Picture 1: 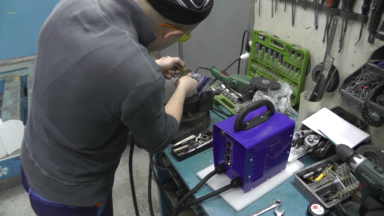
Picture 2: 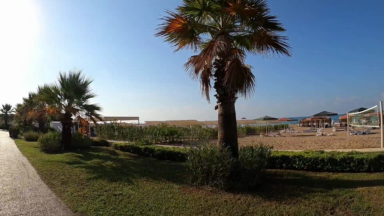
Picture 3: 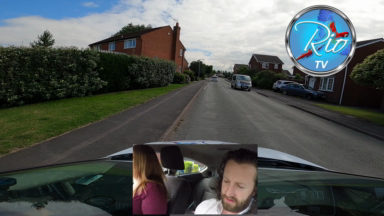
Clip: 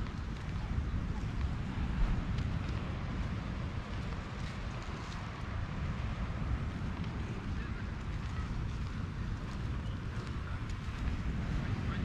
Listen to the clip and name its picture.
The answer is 2